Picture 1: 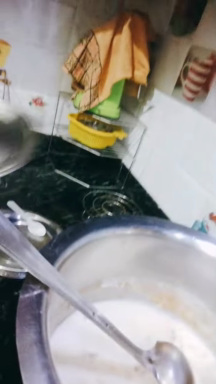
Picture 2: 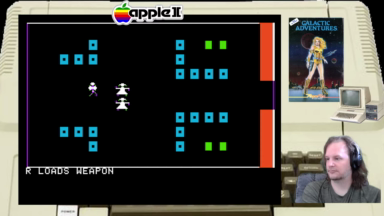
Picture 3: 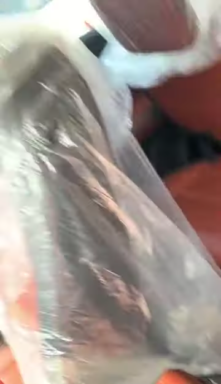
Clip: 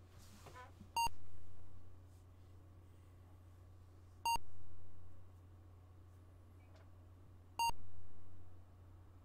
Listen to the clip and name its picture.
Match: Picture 2